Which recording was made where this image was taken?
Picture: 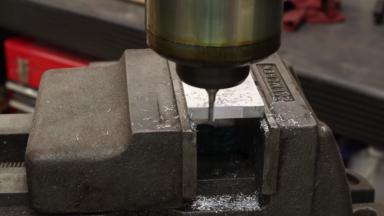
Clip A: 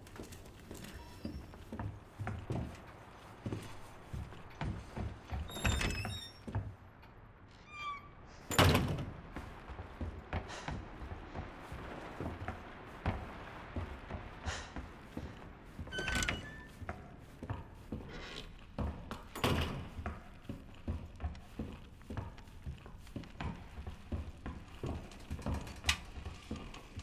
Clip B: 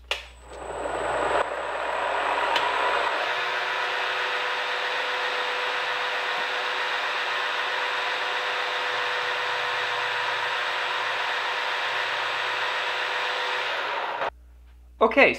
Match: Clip B